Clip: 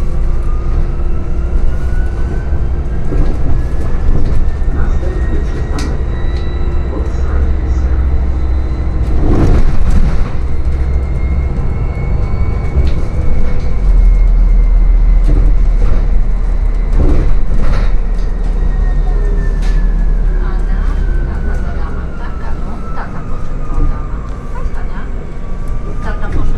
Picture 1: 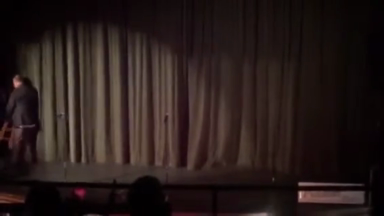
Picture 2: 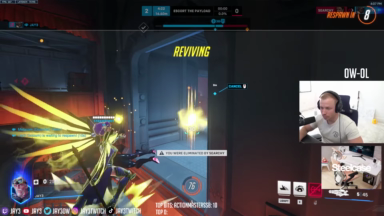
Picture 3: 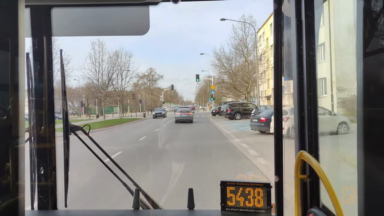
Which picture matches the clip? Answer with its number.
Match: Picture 3